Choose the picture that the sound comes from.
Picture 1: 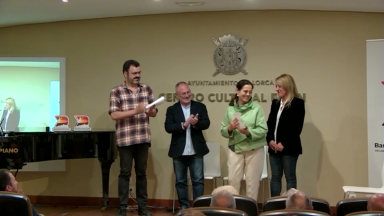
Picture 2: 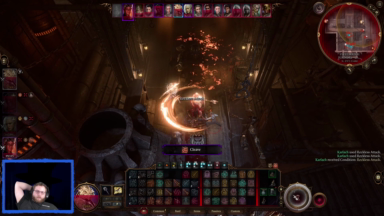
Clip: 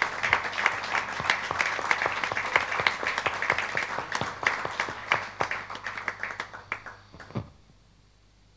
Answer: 1